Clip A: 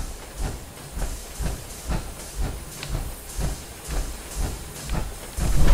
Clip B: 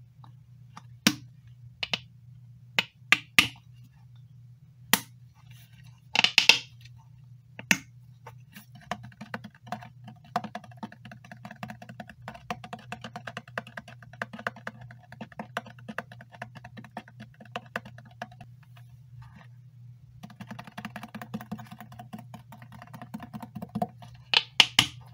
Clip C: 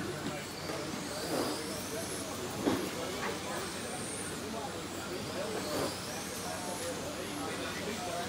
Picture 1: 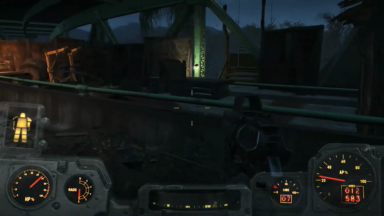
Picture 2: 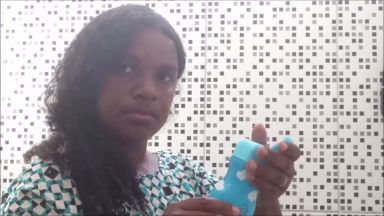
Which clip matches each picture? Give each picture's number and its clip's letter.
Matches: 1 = A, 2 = B